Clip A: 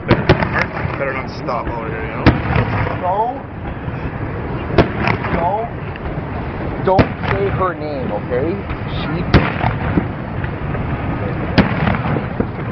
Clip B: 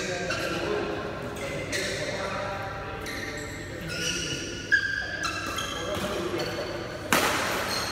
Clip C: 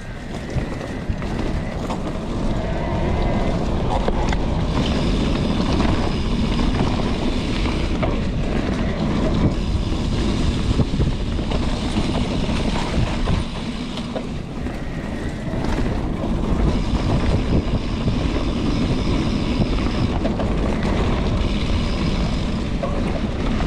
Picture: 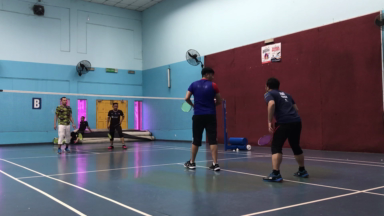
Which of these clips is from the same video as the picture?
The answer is B